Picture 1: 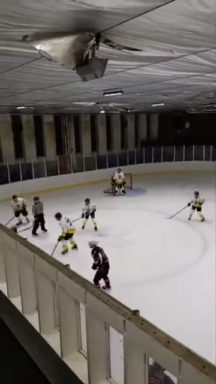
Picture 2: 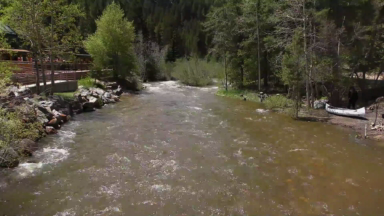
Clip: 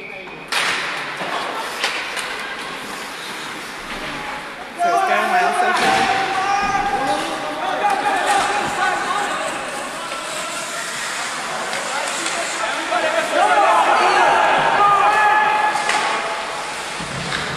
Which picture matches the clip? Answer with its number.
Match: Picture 1